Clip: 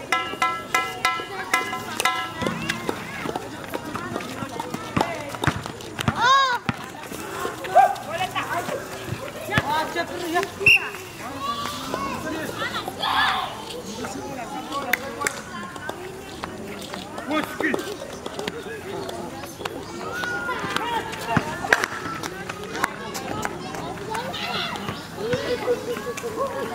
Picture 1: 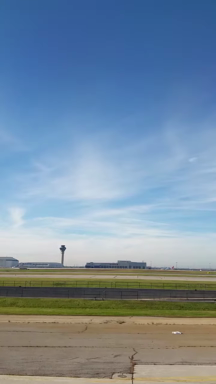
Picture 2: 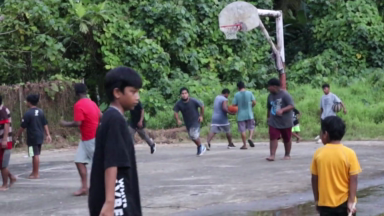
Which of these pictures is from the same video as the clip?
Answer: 2